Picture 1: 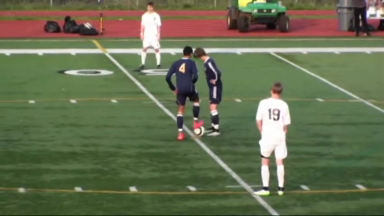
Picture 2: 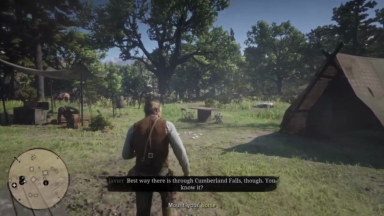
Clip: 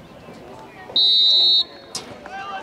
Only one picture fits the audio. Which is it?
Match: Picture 1